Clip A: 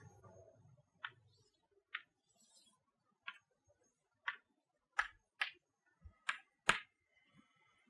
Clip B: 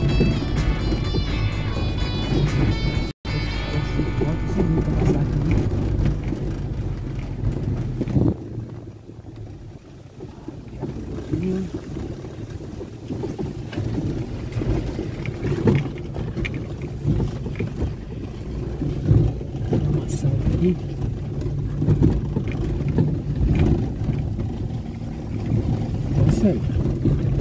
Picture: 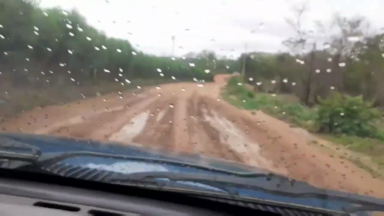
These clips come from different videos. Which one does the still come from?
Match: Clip B